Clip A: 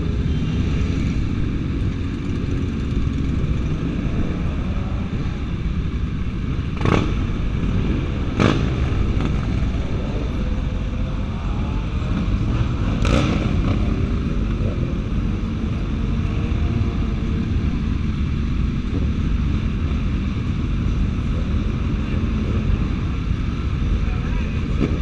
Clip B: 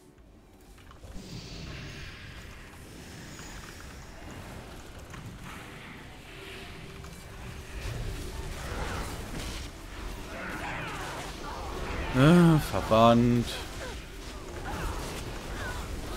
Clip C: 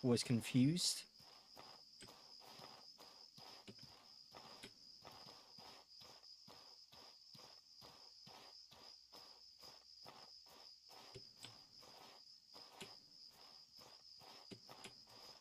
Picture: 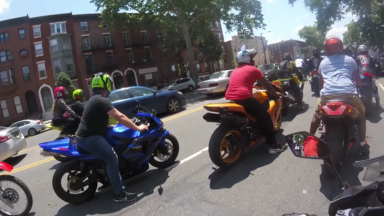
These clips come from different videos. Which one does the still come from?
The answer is A